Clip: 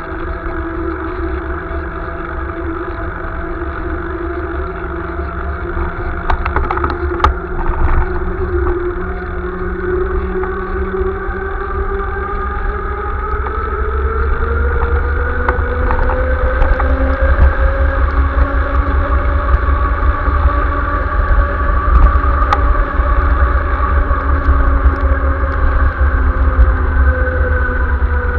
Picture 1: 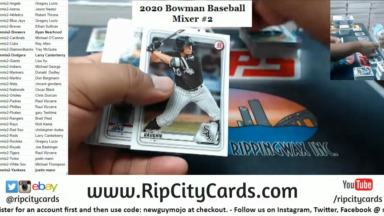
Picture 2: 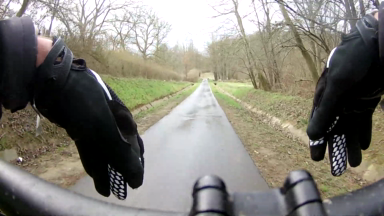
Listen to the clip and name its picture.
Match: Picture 2